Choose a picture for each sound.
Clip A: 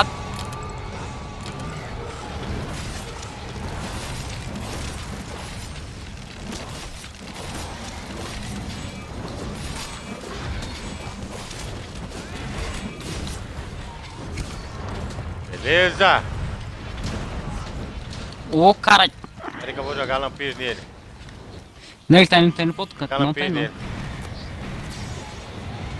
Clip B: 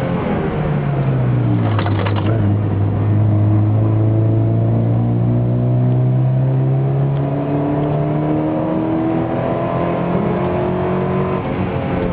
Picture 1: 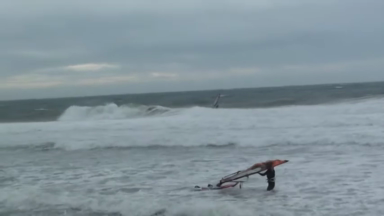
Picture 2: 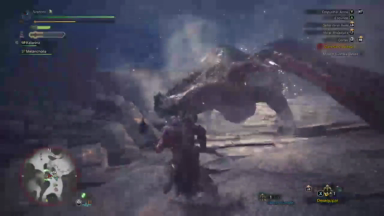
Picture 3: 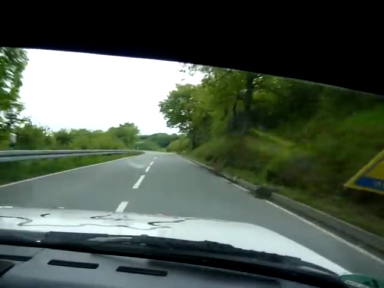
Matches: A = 2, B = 3